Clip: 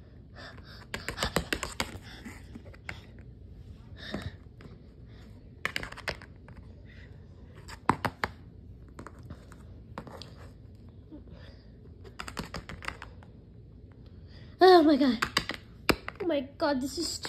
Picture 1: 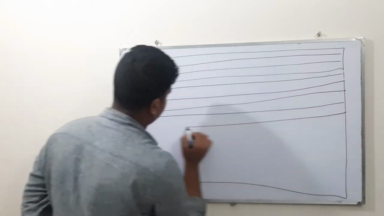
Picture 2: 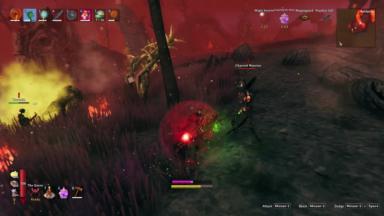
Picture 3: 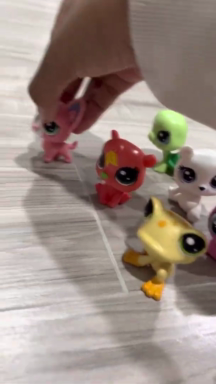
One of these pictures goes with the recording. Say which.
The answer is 3